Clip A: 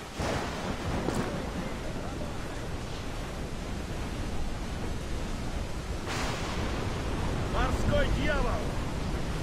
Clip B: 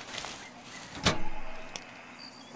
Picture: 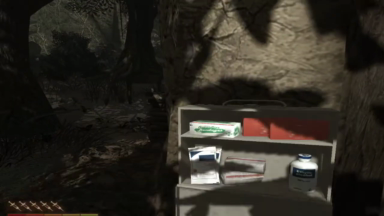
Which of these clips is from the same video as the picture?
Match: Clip B